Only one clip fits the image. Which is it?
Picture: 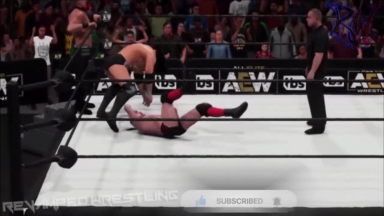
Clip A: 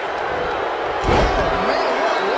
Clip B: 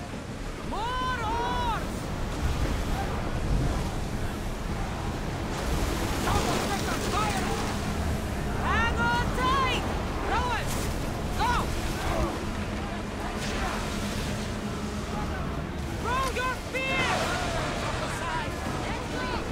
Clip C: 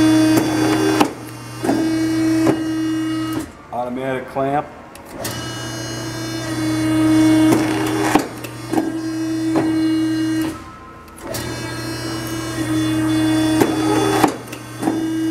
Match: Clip A